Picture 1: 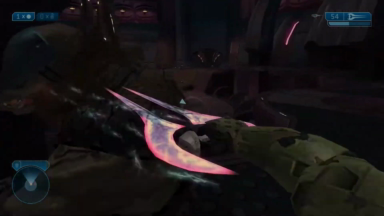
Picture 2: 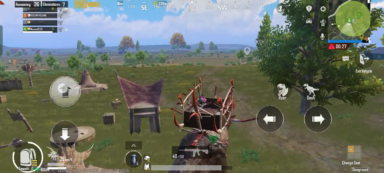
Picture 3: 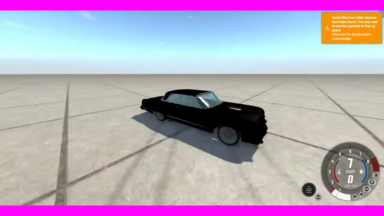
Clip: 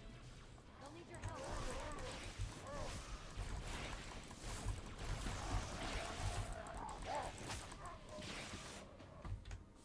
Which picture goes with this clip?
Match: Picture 1